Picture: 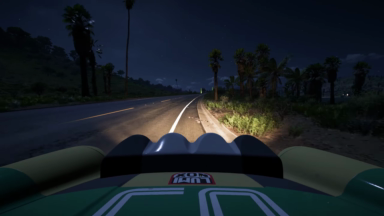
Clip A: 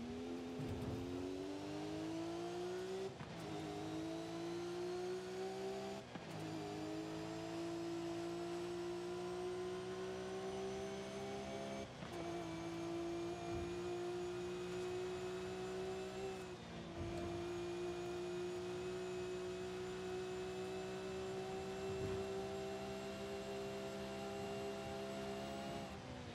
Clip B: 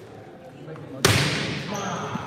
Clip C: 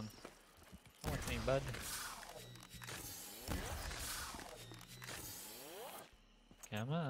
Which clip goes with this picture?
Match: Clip A